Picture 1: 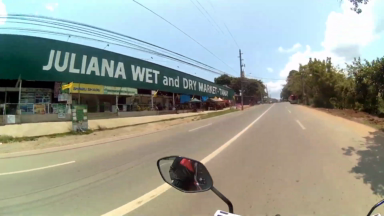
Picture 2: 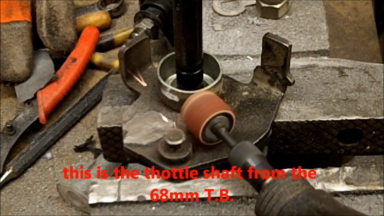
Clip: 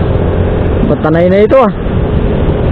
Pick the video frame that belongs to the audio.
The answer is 1